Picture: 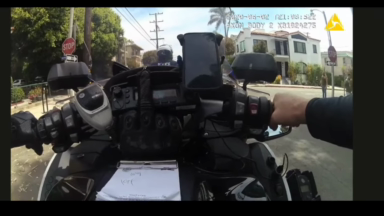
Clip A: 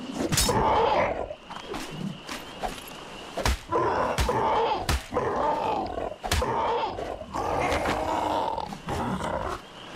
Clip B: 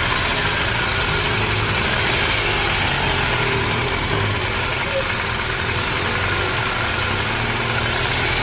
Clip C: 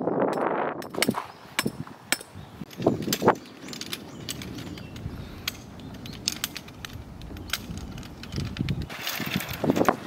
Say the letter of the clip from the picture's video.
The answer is B